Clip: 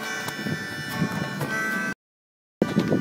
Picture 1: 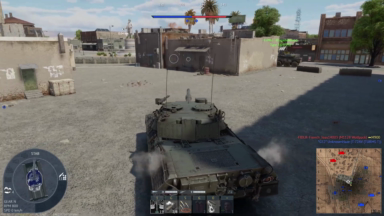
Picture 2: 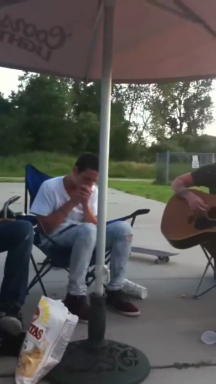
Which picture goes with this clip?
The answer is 2